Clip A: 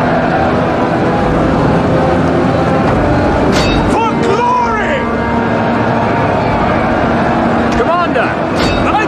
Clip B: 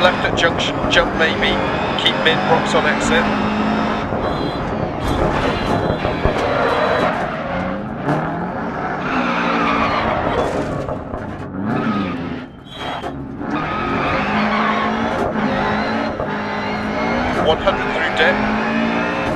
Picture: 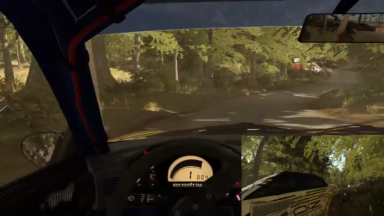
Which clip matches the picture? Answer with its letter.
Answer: B